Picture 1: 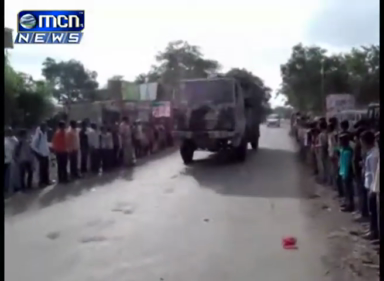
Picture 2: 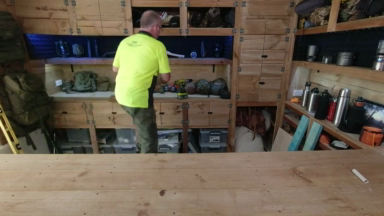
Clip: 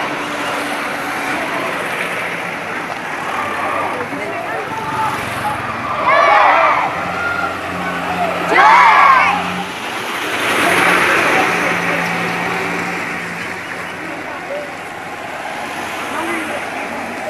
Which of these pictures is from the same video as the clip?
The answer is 1